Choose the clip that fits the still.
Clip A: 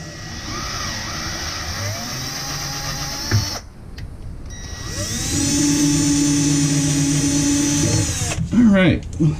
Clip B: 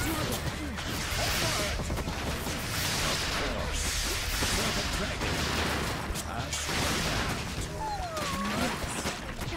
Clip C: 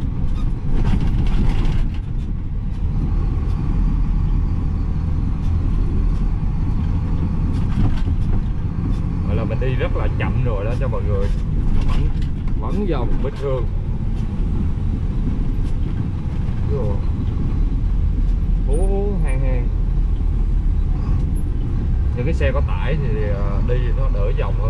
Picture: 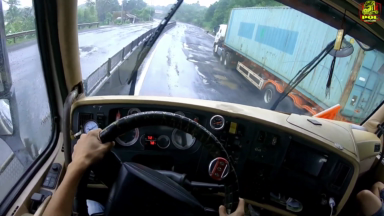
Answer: C